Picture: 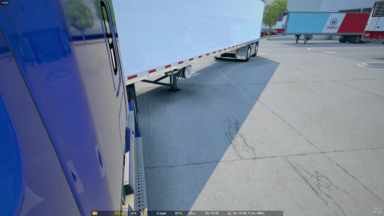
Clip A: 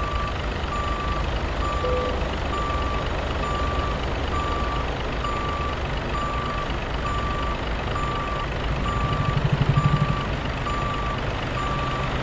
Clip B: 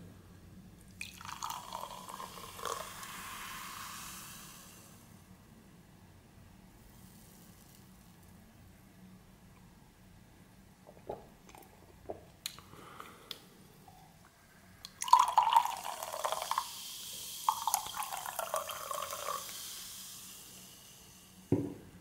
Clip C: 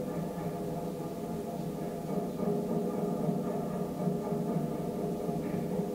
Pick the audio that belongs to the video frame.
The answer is A